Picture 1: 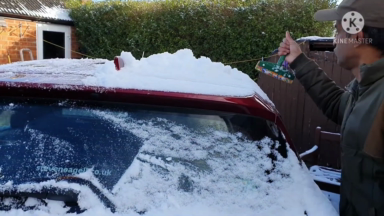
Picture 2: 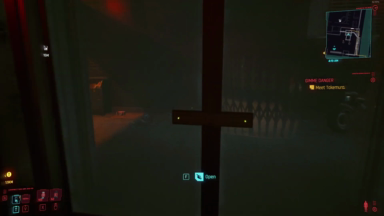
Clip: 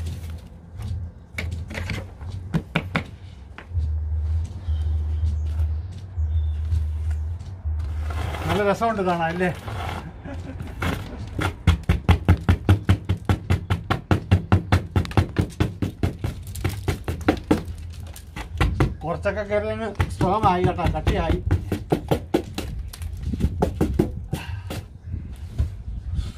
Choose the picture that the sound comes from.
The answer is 1